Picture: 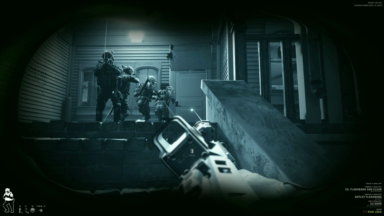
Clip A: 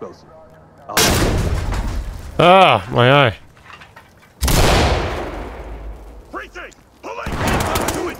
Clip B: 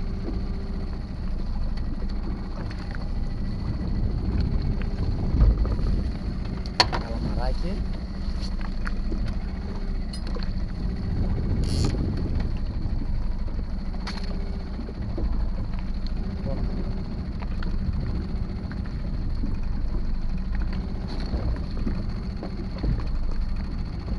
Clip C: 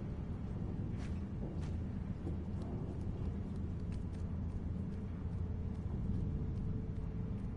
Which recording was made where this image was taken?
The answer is A